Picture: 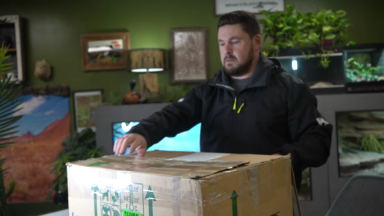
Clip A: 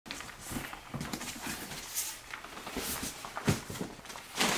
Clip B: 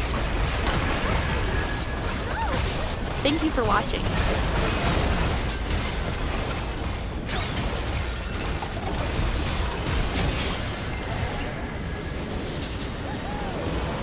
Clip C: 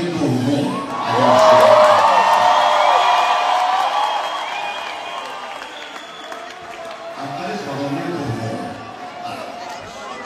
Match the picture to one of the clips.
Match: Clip A